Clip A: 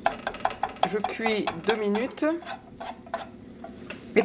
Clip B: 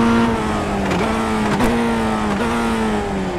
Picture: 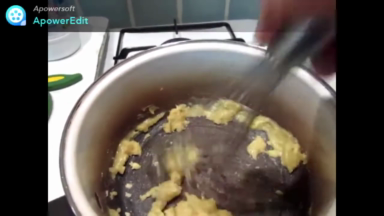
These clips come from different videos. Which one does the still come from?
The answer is A